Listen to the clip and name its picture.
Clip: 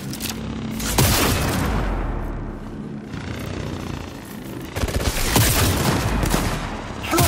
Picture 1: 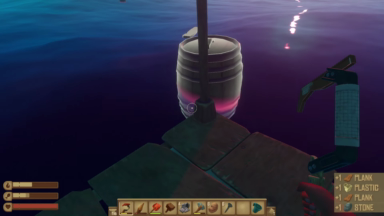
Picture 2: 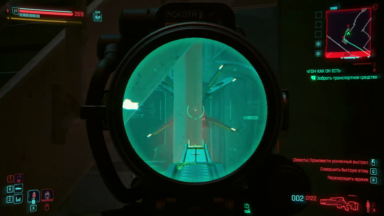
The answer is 2